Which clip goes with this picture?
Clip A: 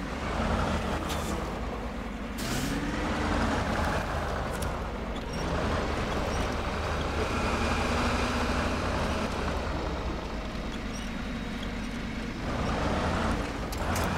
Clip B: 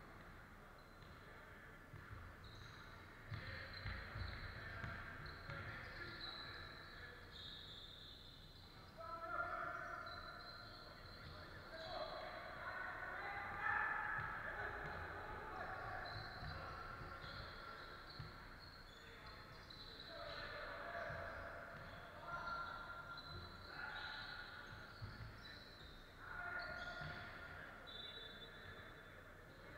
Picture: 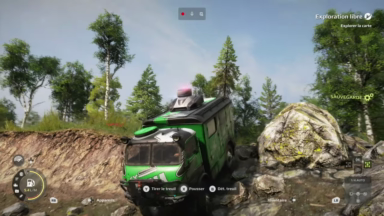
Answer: A